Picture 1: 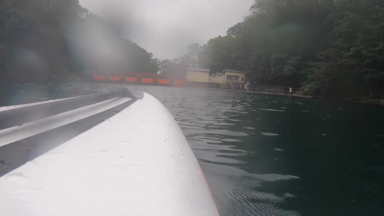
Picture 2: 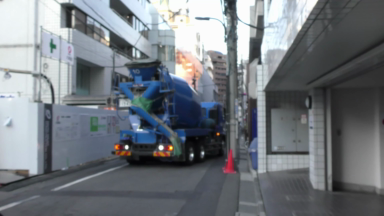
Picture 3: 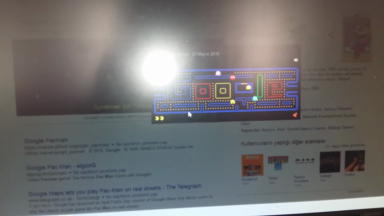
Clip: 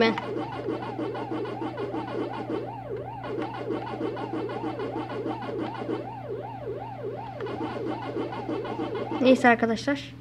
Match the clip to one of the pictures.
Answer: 3